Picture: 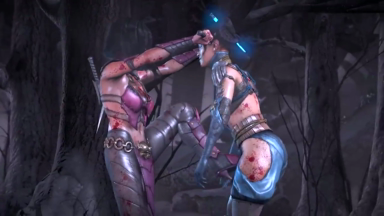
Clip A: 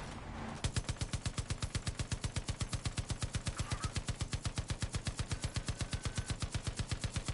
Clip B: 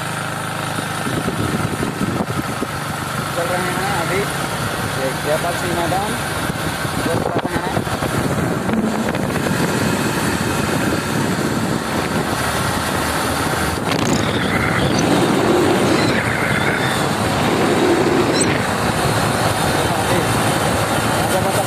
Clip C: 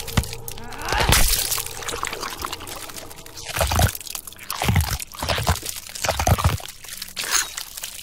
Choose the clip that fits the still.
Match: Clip C